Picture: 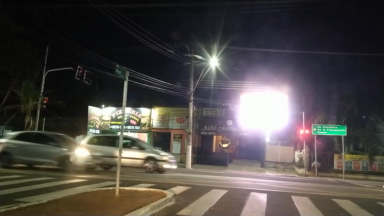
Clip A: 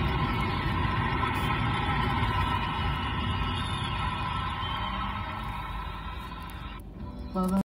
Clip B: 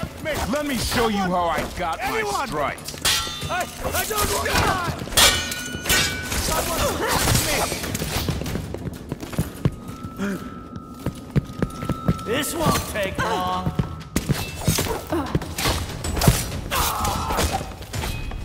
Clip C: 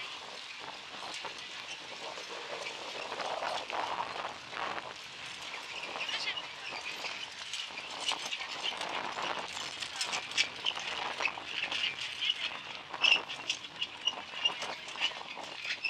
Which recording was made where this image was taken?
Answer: A